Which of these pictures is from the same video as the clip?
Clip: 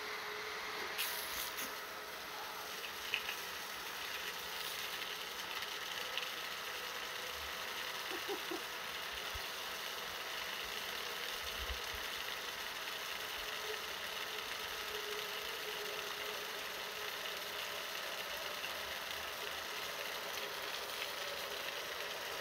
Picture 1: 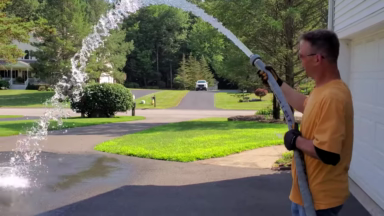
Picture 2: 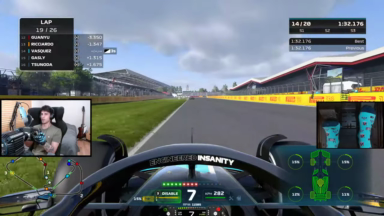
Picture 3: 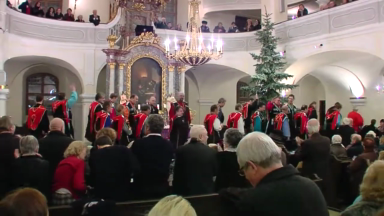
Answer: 1